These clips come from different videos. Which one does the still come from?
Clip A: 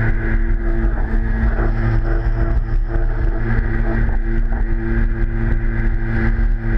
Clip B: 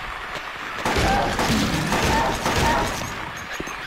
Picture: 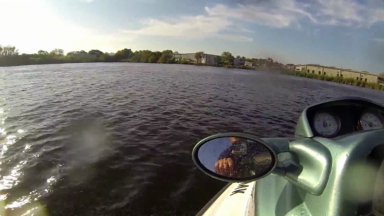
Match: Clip A